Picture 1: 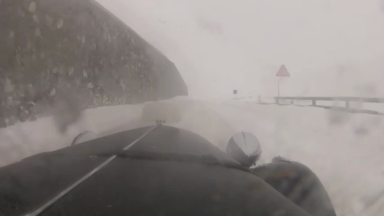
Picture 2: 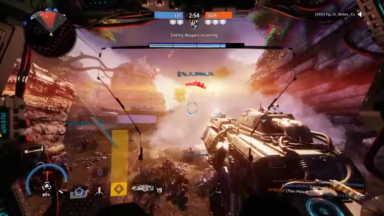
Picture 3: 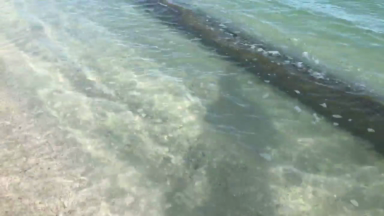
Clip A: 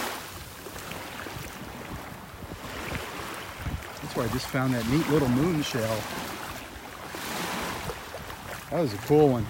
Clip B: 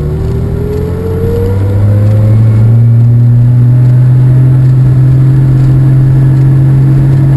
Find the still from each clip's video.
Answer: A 3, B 1